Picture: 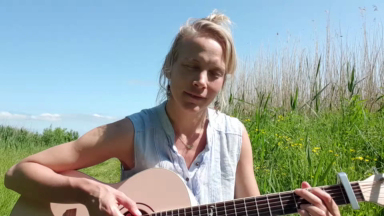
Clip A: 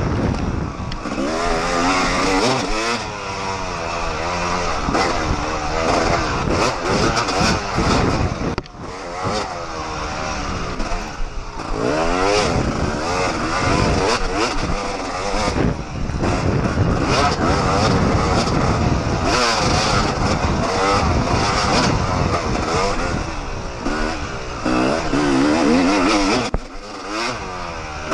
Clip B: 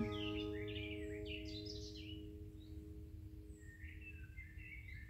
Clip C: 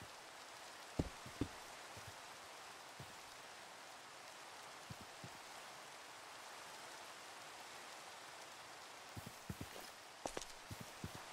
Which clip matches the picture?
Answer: B